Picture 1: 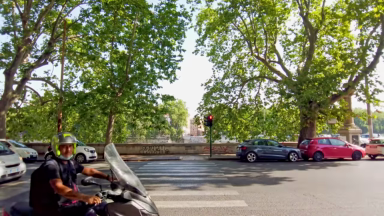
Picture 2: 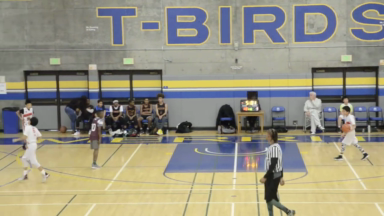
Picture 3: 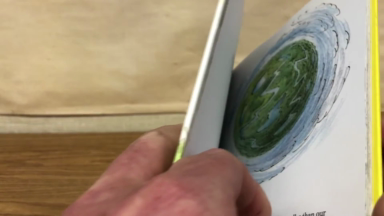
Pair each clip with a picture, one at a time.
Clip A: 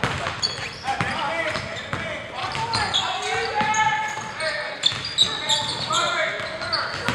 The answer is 2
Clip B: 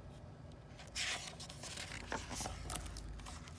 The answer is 3